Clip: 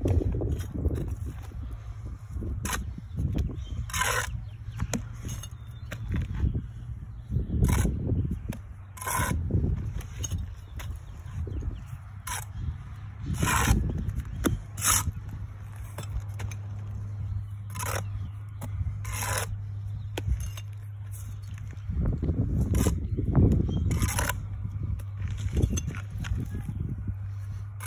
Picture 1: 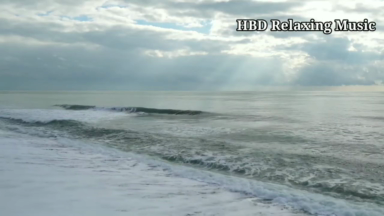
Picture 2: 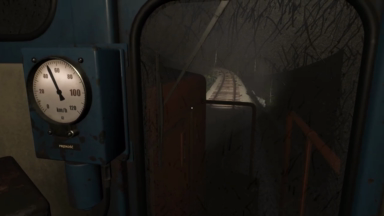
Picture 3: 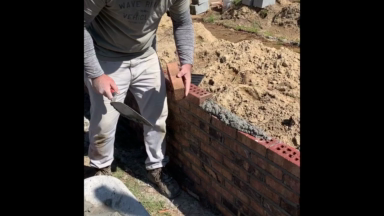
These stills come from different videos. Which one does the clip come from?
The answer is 3